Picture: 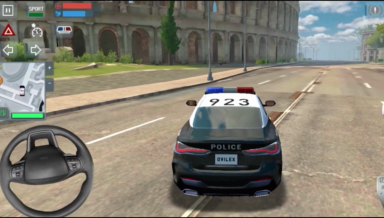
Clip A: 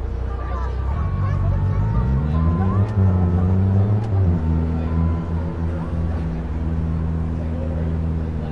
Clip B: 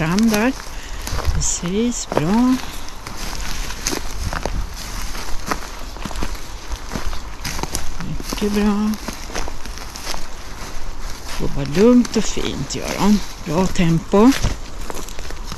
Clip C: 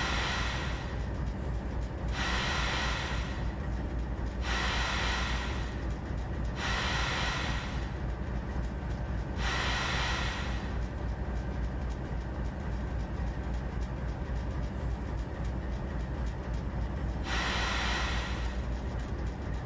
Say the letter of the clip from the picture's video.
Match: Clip A